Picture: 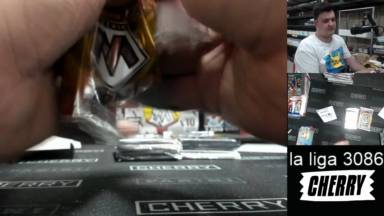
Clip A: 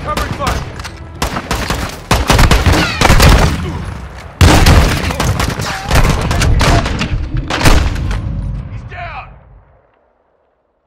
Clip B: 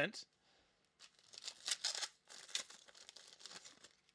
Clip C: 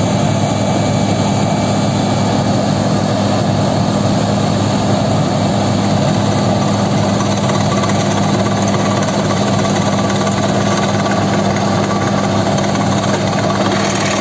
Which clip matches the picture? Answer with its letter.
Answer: B